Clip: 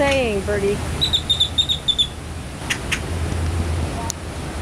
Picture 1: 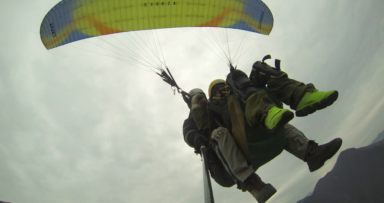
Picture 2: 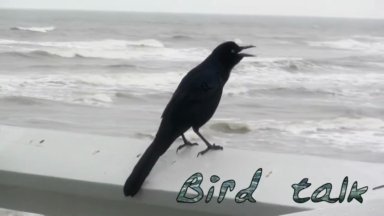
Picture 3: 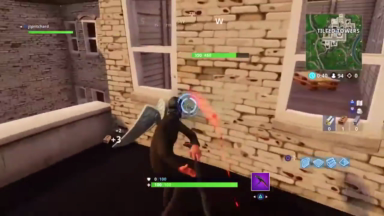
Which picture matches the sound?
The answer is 2